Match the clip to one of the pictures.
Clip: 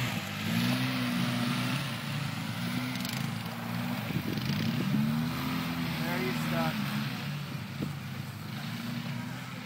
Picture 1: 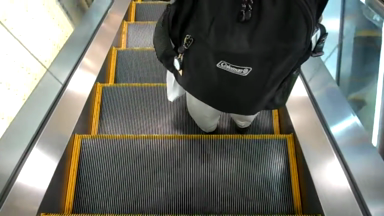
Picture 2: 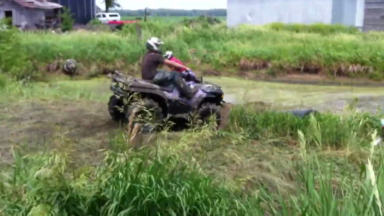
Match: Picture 2